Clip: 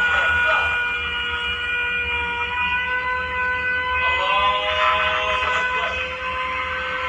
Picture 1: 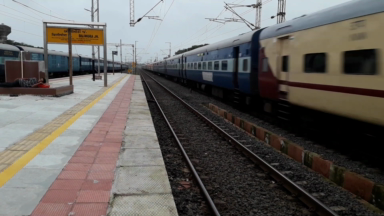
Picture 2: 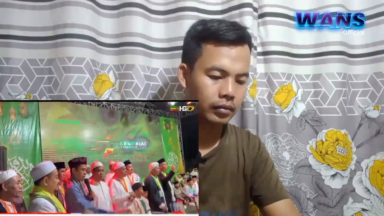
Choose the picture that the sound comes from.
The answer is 2